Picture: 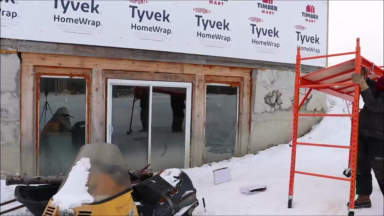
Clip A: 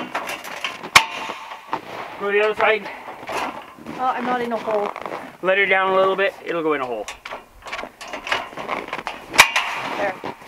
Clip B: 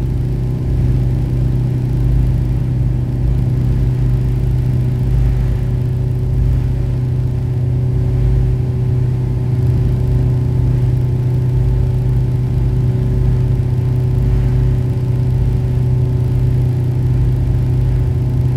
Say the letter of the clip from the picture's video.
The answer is A